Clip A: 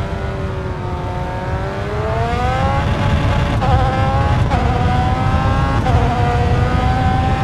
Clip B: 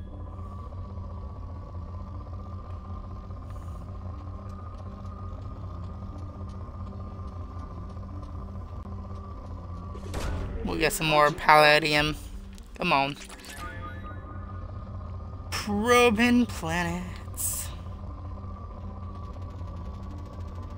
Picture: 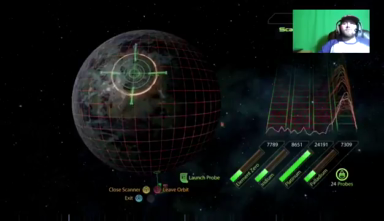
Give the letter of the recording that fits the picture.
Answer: B